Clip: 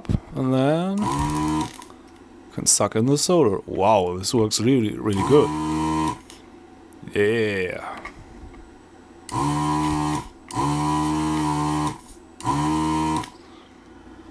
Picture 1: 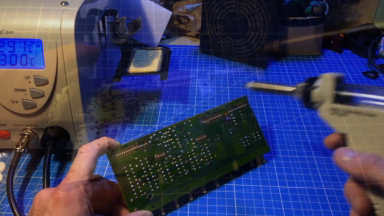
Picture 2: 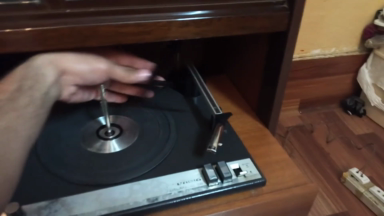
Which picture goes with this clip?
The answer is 1